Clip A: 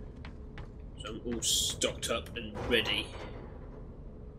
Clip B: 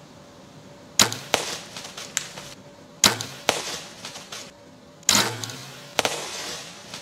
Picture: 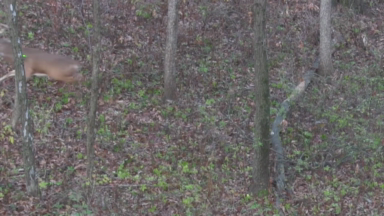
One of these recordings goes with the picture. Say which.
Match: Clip B